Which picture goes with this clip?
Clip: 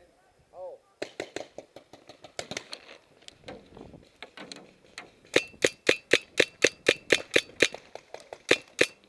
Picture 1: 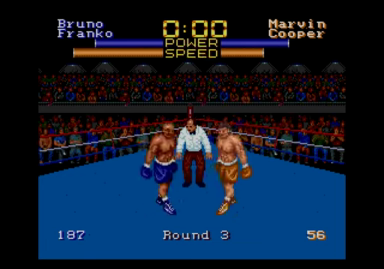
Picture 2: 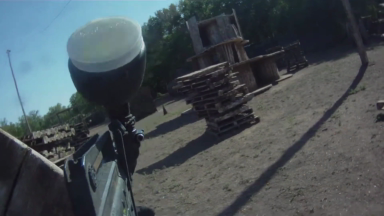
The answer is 2